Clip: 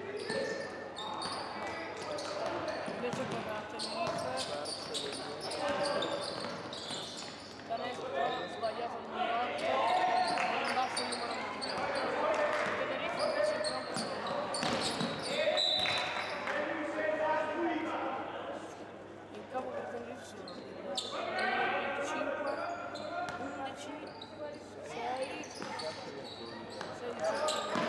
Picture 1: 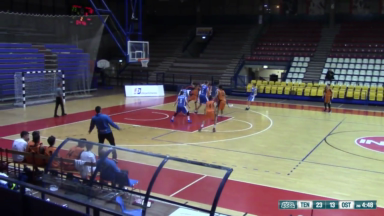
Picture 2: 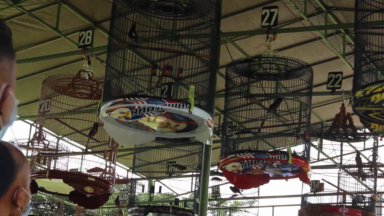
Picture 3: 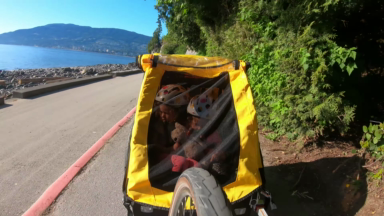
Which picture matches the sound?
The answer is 1